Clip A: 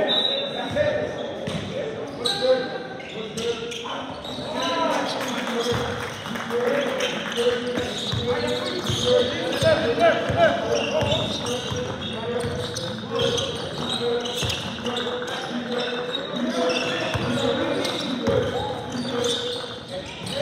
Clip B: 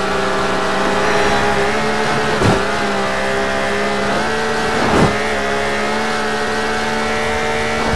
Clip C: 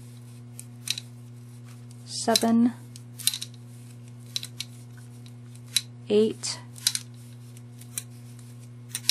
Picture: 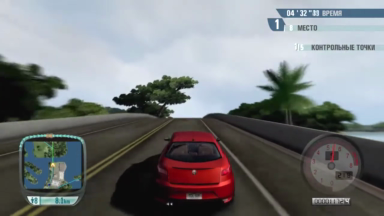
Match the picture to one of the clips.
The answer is B